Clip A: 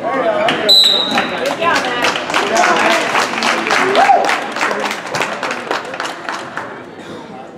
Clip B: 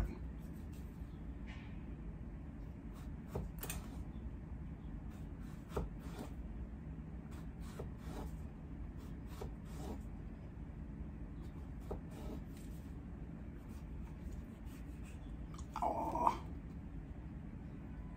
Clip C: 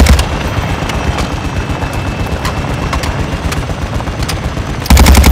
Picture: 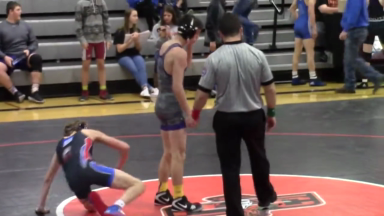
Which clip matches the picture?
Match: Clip A